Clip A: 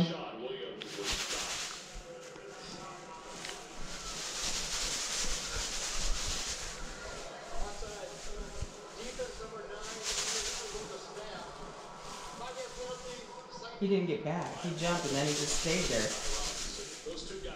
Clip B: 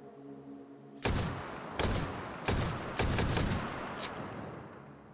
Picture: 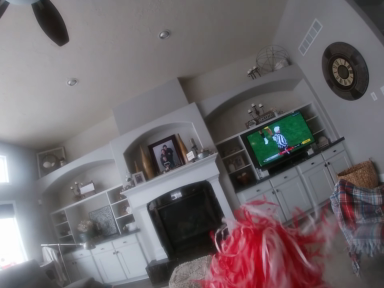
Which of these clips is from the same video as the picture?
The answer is A